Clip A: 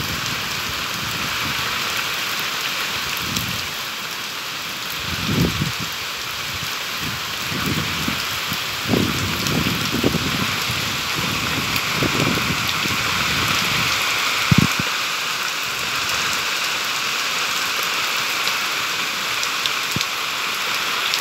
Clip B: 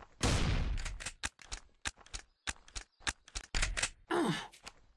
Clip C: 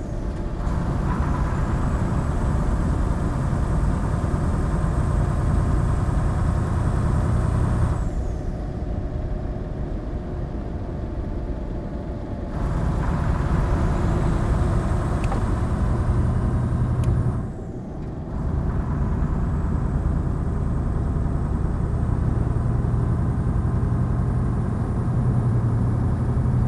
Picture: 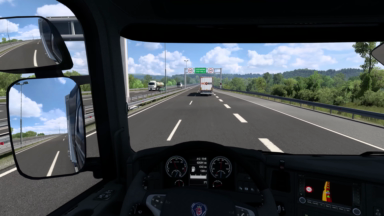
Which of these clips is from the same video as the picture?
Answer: C